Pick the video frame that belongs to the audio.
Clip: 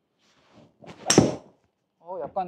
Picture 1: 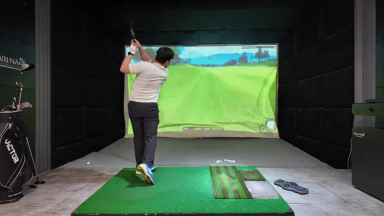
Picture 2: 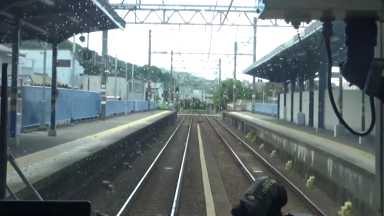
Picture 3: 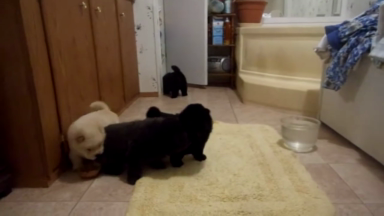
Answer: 1